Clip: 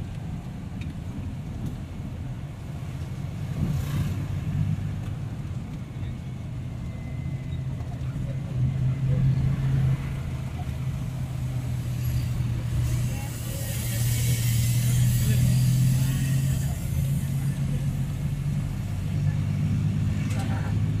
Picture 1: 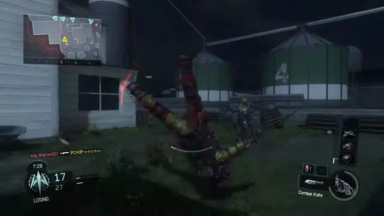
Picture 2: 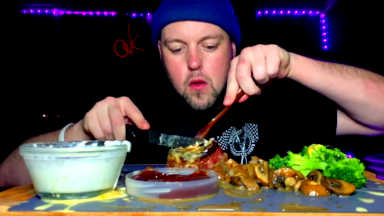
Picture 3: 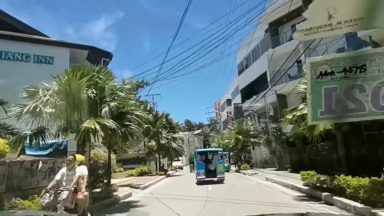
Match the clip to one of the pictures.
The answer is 3